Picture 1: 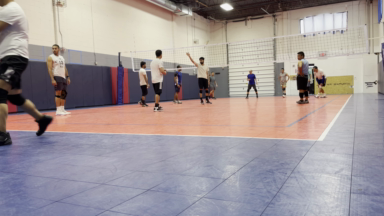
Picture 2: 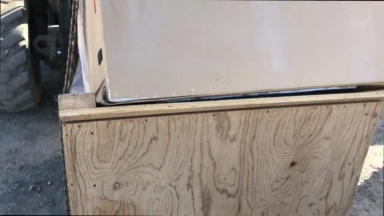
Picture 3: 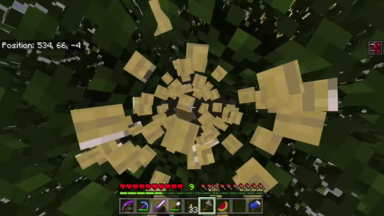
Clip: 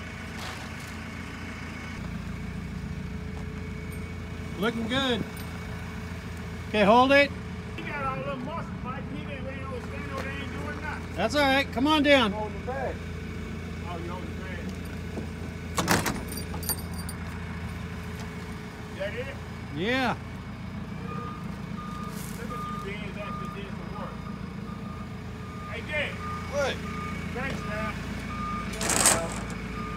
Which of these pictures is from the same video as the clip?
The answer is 2